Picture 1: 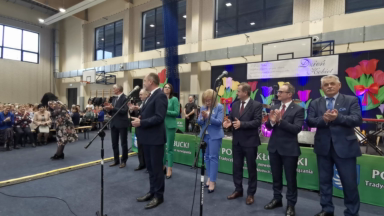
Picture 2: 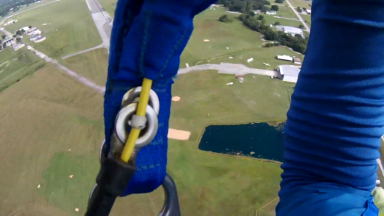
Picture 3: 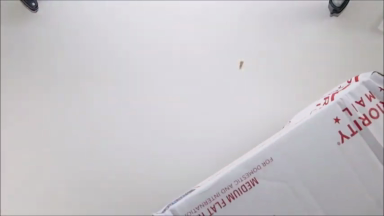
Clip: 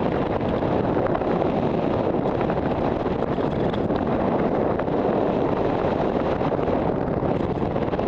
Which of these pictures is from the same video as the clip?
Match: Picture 2